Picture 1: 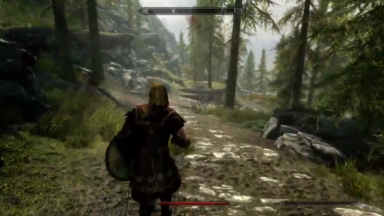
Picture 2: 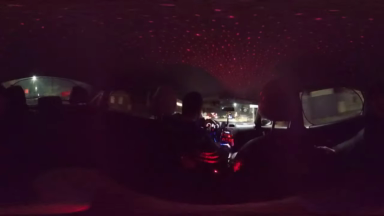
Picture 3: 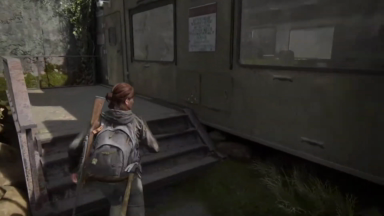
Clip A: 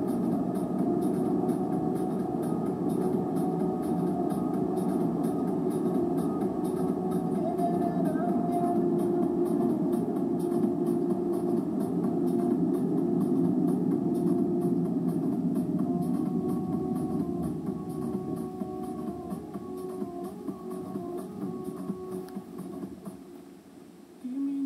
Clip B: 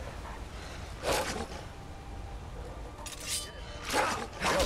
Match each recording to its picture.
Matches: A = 2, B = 1